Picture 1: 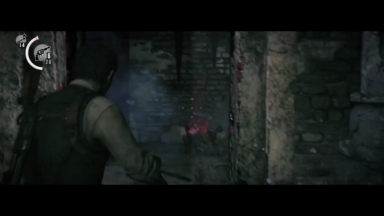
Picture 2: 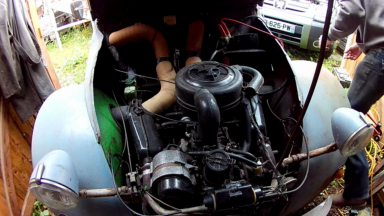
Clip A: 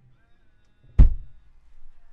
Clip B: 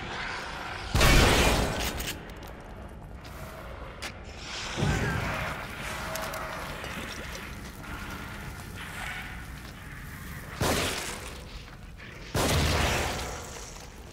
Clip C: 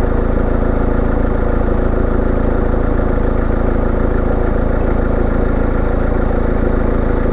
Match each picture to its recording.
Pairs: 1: B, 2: C